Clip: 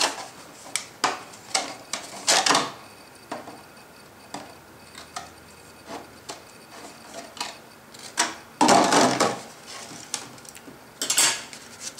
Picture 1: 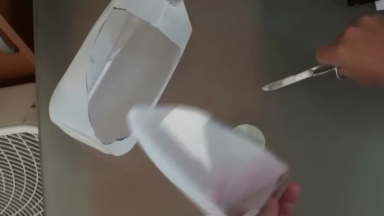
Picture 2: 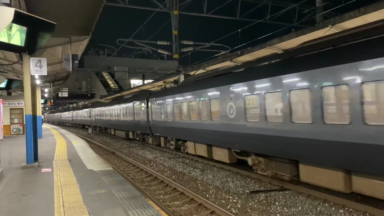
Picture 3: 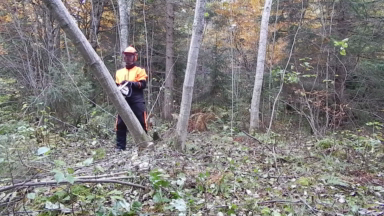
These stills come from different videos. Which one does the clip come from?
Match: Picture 1